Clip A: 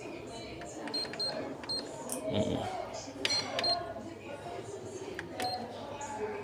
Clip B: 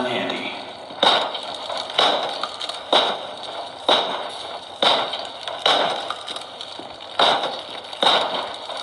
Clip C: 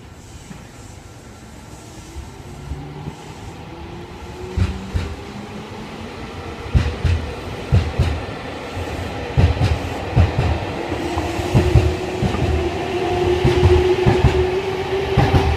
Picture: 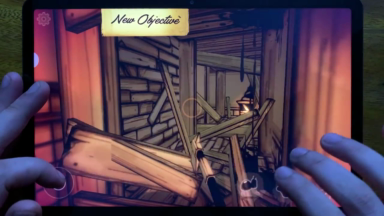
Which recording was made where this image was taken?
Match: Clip B